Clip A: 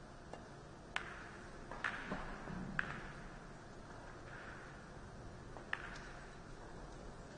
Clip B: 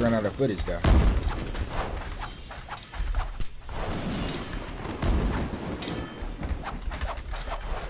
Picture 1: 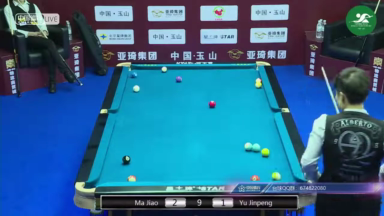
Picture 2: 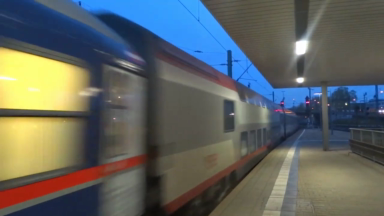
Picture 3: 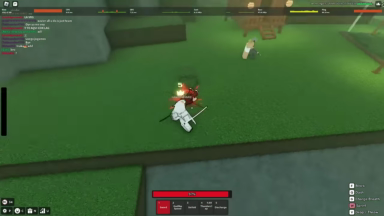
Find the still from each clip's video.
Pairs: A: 1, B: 3